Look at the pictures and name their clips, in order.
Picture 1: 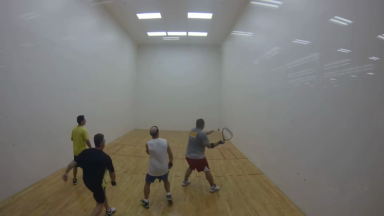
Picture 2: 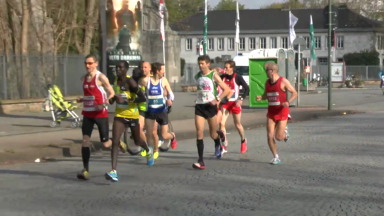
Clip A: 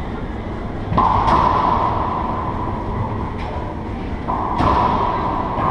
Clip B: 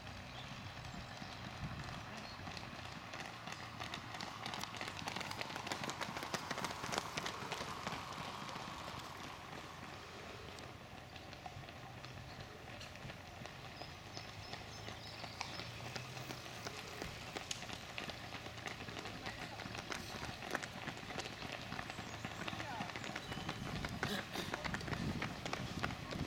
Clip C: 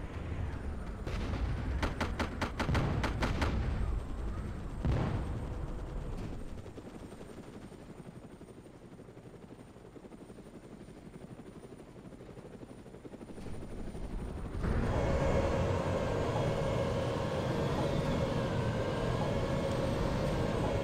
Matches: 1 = A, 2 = B